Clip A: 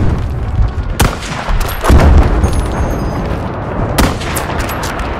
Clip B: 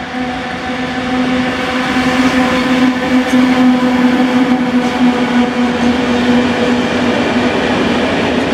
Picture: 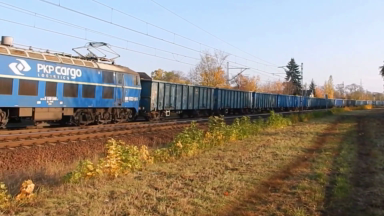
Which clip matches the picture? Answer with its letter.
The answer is B